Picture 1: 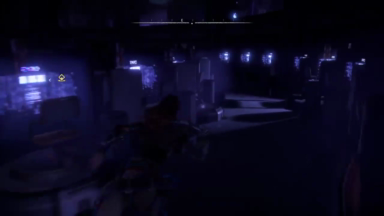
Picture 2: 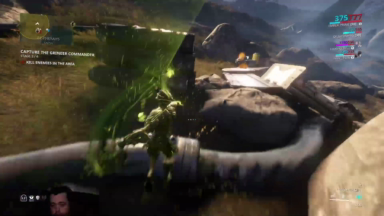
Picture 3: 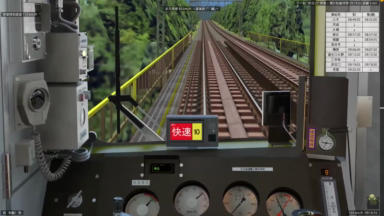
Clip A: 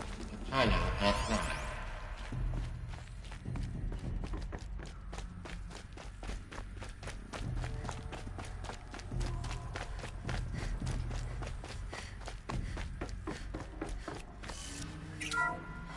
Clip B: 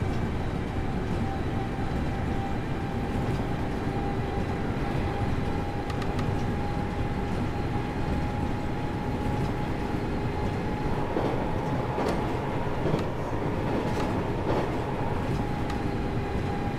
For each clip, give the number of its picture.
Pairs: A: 1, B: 3